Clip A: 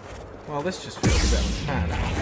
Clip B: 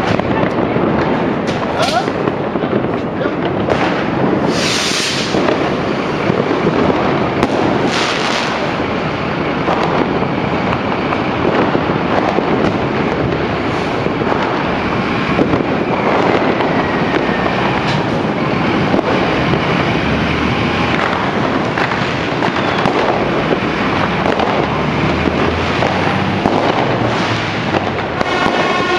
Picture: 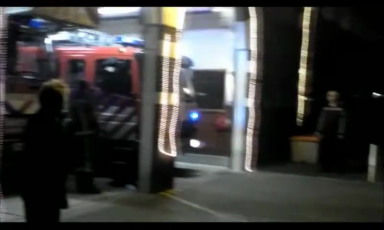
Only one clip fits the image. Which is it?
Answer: B